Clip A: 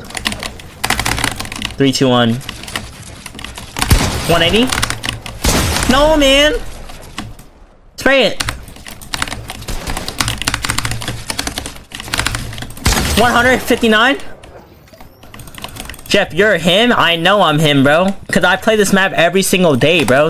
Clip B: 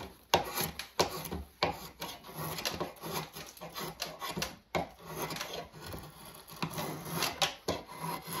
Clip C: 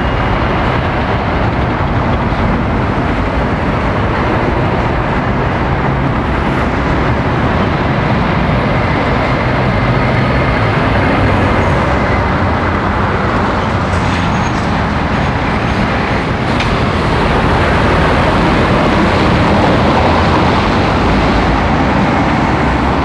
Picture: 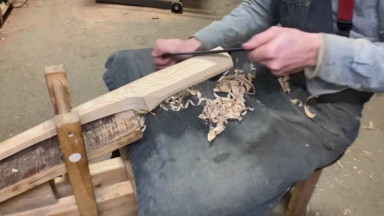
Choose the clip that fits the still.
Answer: B